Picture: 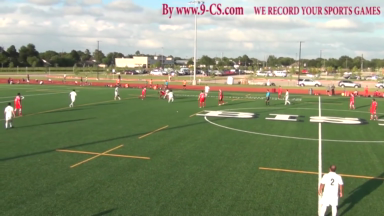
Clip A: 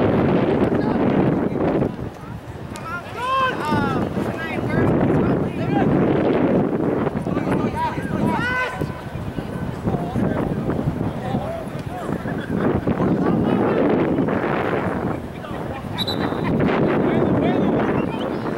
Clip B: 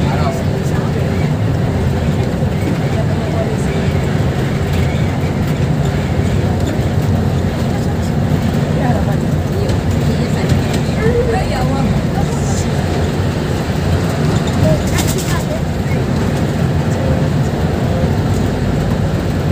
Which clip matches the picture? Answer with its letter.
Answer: A